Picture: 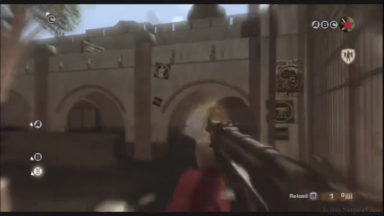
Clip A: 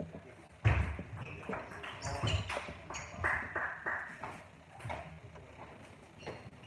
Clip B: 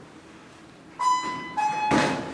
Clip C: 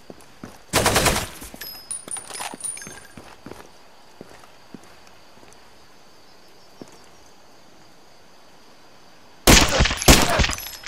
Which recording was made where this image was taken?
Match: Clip C